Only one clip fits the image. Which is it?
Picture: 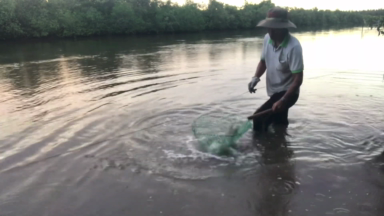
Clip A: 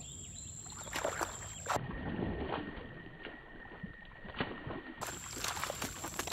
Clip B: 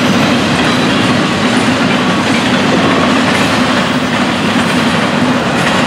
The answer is A